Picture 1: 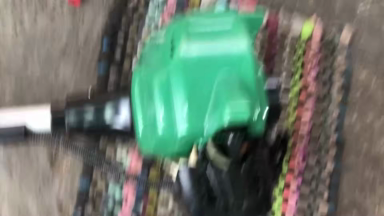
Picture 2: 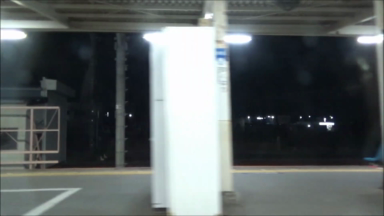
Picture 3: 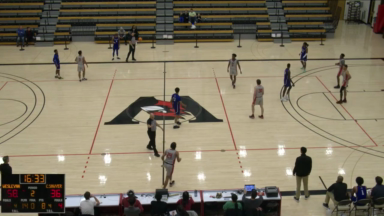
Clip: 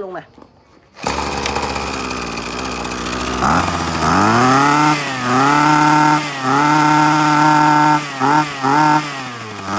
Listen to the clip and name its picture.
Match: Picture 1